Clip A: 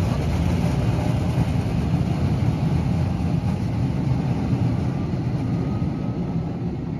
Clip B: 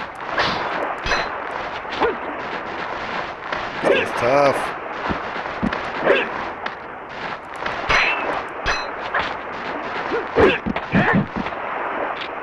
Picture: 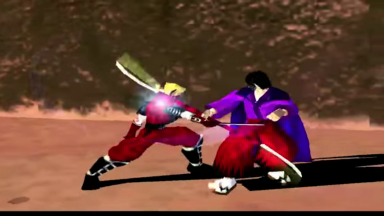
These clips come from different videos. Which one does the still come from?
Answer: B